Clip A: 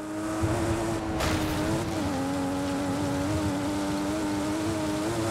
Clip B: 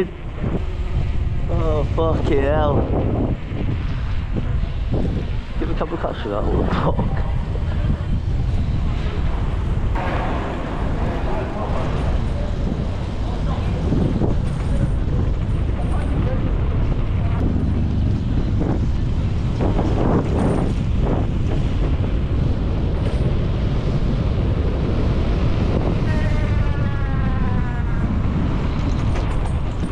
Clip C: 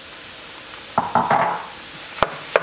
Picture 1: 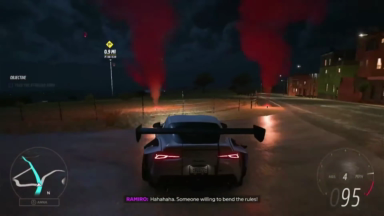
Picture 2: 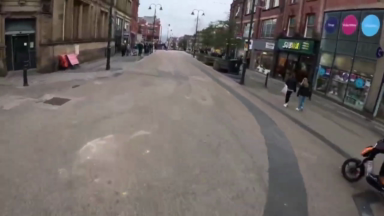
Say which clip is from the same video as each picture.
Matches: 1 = A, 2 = B